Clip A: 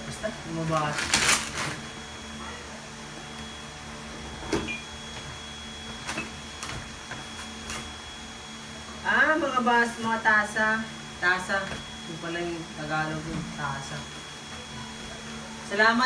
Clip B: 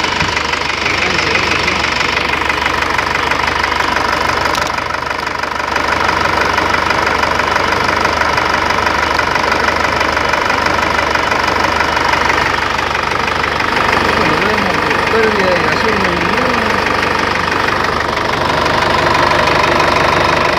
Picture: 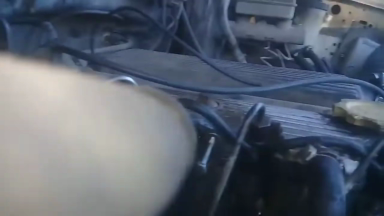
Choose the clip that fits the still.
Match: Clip B